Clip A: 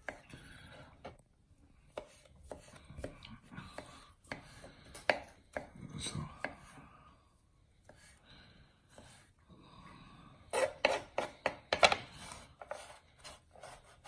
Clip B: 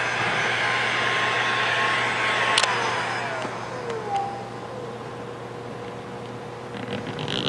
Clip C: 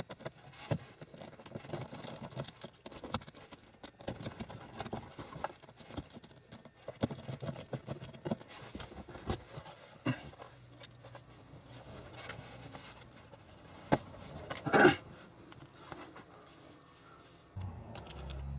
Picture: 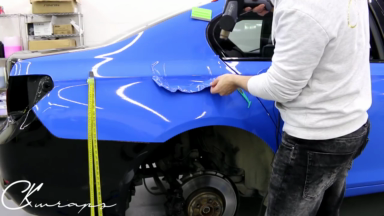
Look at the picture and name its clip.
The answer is B